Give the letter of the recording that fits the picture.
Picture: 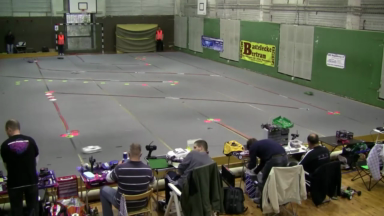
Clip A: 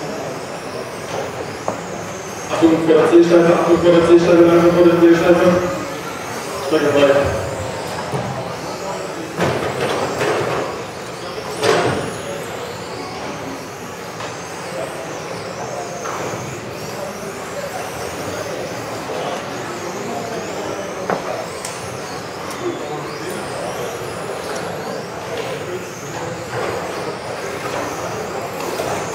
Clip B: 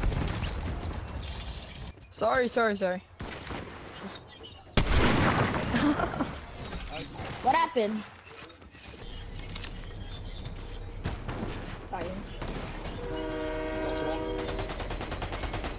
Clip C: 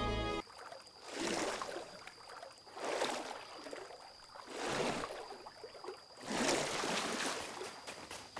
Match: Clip A